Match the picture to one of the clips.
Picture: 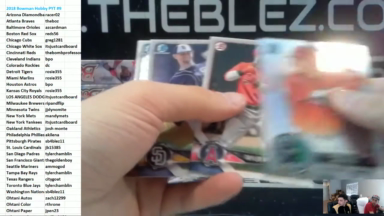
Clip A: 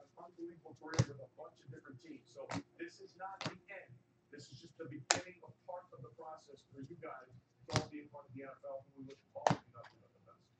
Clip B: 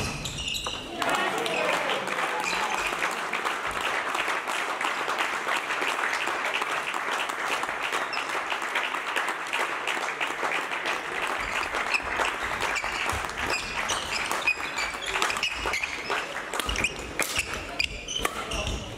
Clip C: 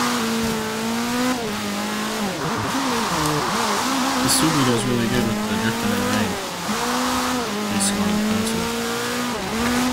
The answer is A